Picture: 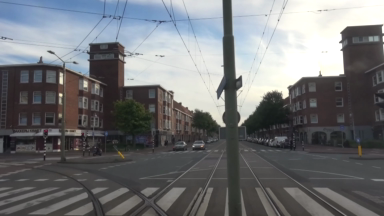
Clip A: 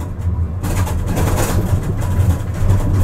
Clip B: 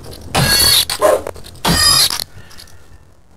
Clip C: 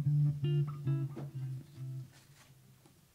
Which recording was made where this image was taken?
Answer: A